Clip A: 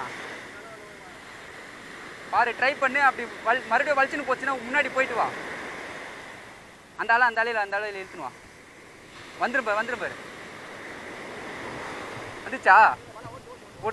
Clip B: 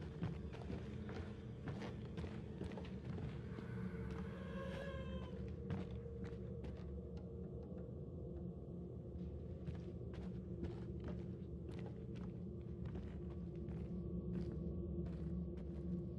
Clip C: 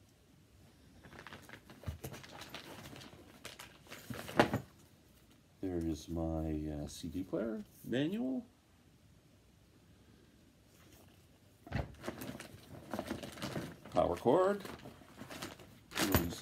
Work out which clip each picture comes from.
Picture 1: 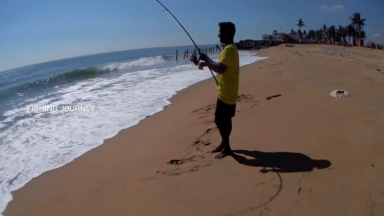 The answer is A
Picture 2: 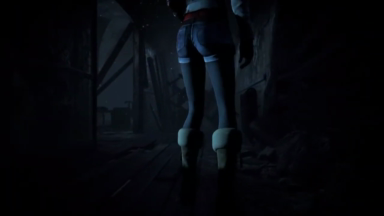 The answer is B